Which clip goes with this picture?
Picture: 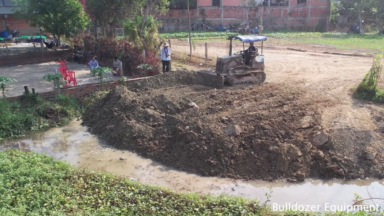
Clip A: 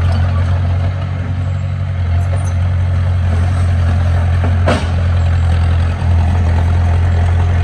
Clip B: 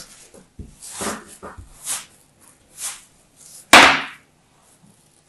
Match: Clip A